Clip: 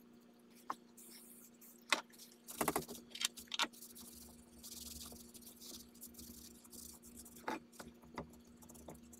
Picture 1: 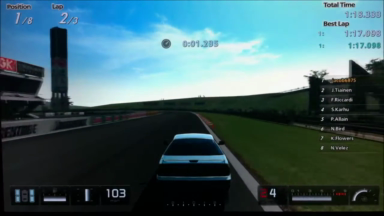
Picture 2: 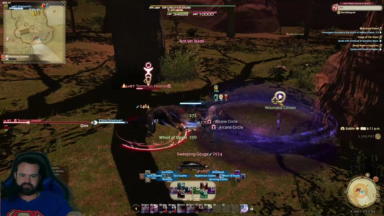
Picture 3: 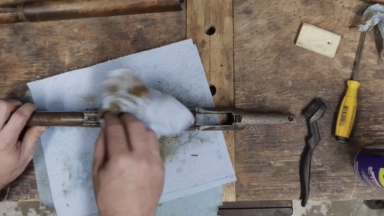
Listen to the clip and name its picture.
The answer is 3